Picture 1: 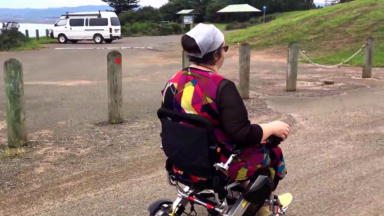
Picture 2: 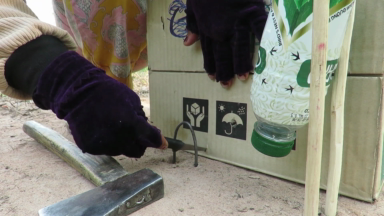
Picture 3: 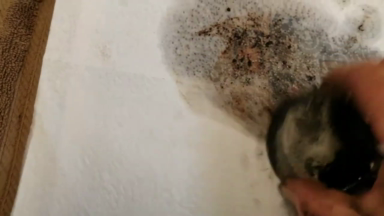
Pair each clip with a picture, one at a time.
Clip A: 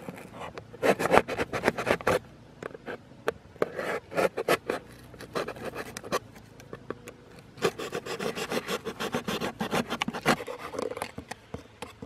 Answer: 2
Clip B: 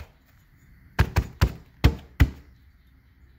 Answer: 3